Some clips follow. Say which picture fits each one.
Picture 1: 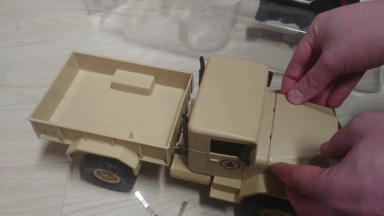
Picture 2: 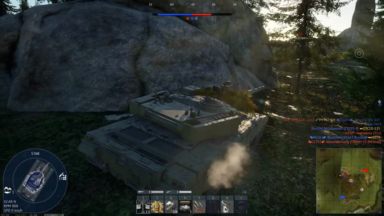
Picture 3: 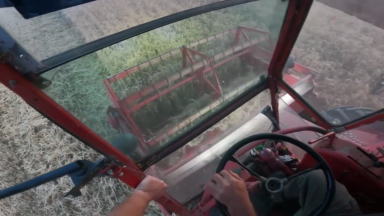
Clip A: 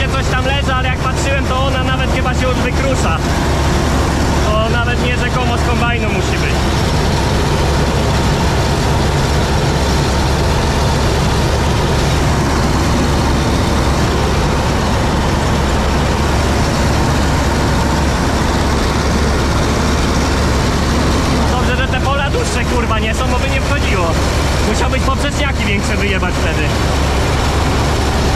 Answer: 3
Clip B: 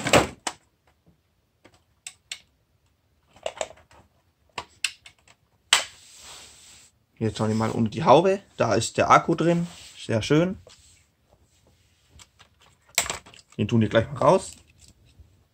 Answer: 1